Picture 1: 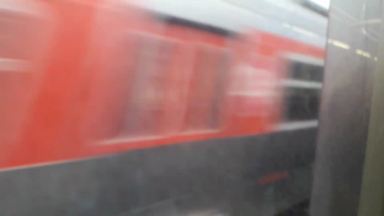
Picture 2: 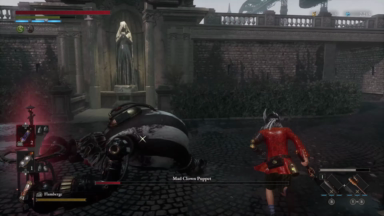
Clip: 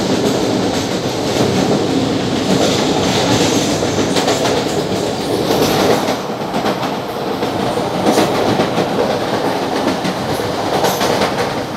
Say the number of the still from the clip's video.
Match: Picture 1